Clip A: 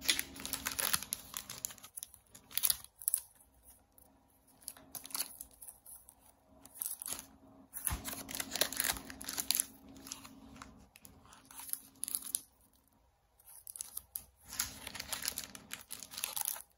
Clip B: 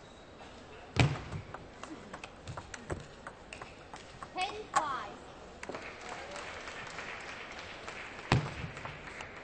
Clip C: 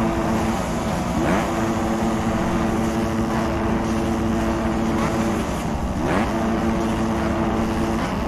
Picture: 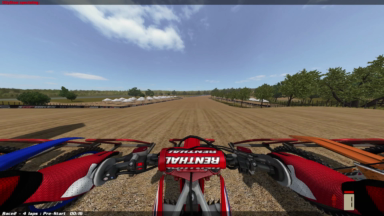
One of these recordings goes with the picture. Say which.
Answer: C